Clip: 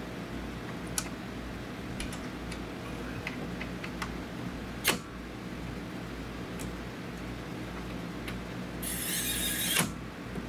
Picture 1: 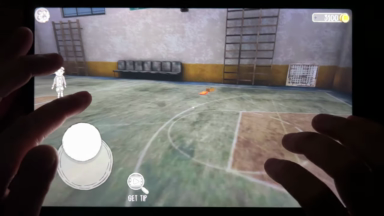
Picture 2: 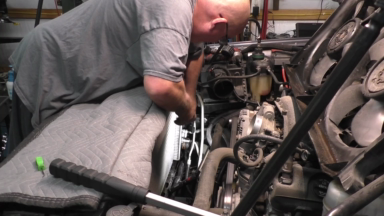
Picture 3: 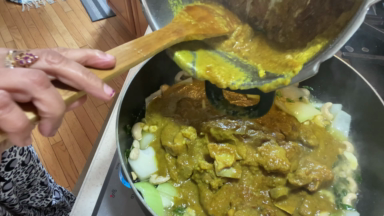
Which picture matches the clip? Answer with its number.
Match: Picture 2